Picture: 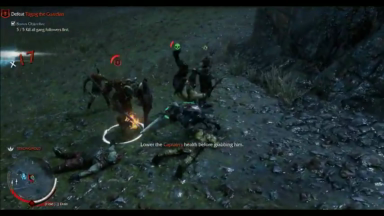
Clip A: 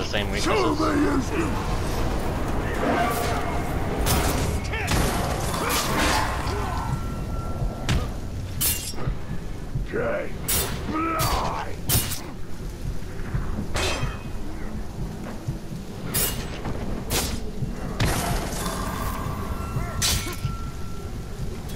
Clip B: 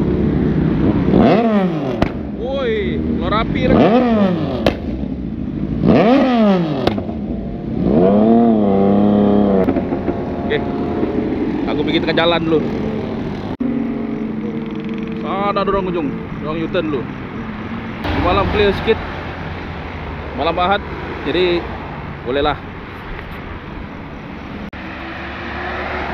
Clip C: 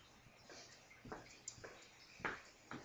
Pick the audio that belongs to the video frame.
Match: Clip A